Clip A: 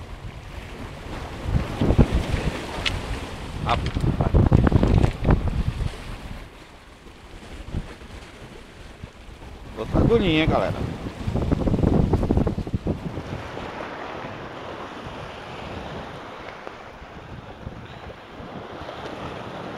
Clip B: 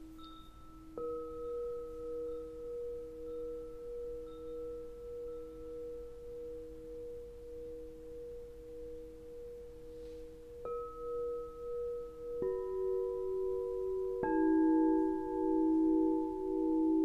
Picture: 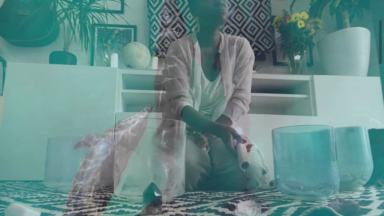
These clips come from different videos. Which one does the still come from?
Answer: B